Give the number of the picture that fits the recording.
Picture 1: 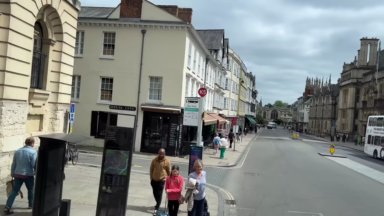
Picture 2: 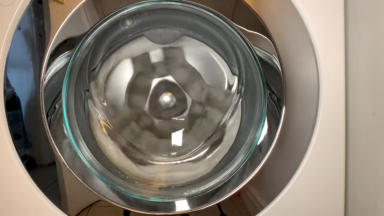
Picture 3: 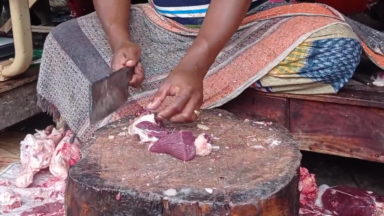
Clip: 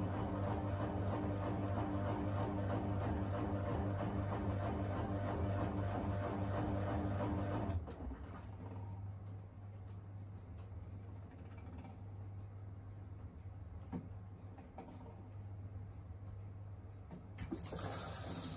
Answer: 2